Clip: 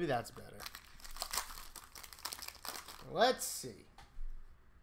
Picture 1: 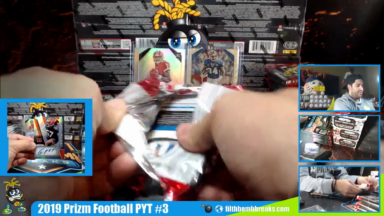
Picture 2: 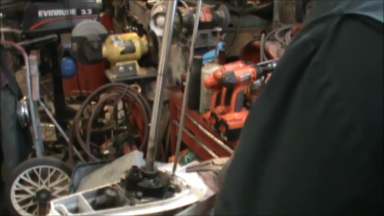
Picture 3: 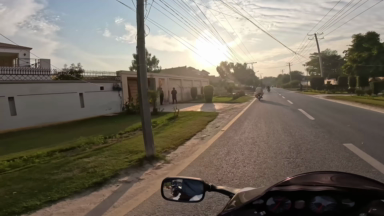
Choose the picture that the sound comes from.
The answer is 1